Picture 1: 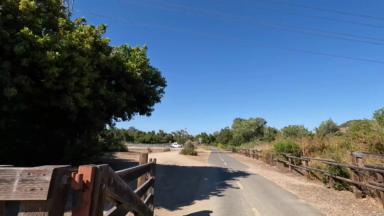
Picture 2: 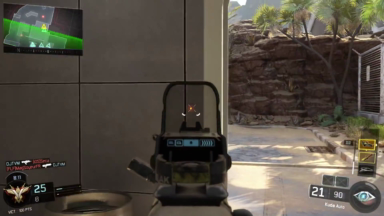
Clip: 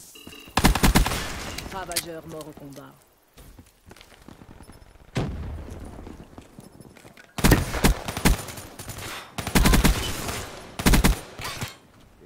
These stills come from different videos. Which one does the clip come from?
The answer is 2